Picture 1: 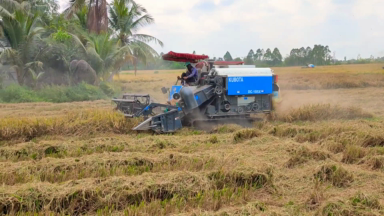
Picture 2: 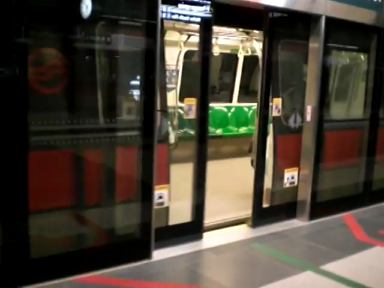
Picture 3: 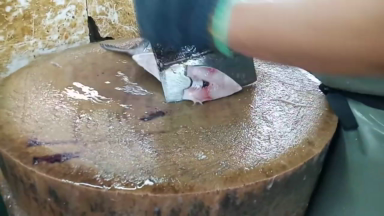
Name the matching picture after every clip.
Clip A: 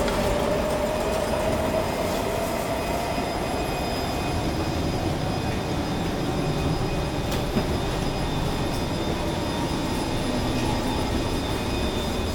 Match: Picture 2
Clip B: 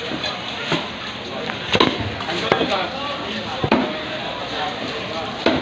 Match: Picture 3